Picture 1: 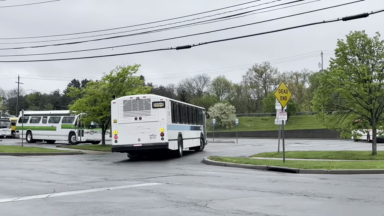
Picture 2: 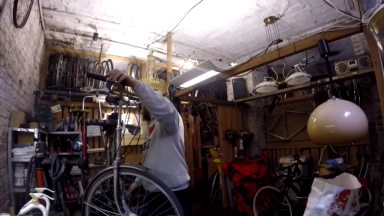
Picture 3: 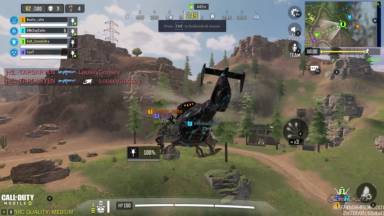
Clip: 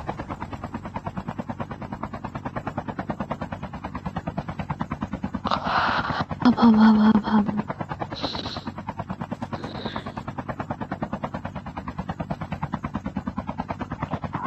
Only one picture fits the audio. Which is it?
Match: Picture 3